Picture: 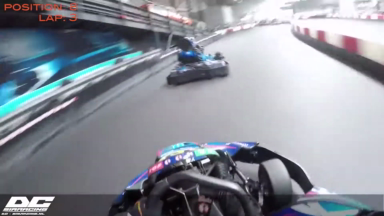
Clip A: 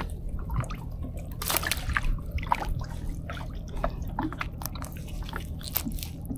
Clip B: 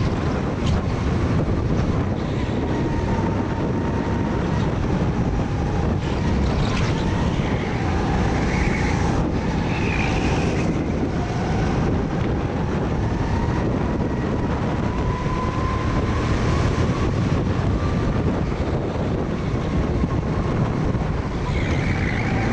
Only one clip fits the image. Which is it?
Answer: B